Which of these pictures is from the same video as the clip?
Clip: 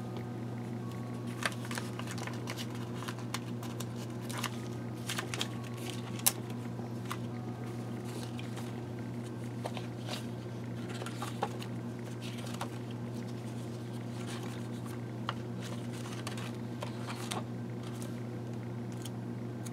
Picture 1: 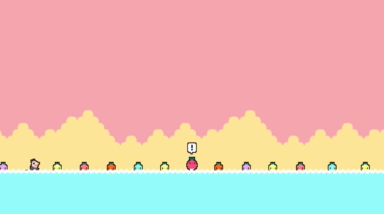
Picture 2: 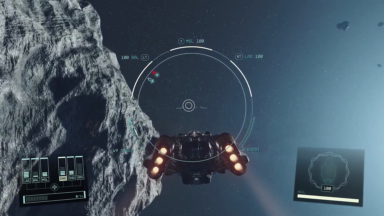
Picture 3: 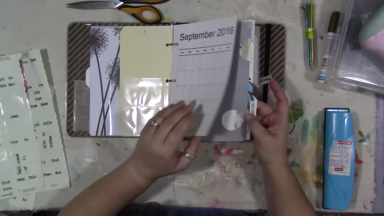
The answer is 3